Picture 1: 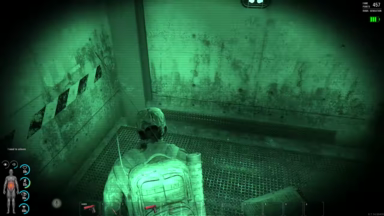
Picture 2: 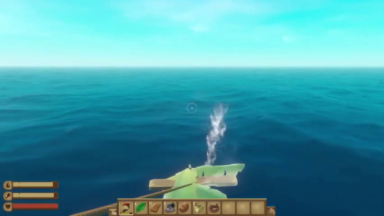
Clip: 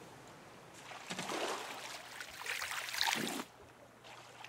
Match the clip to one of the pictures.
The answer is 2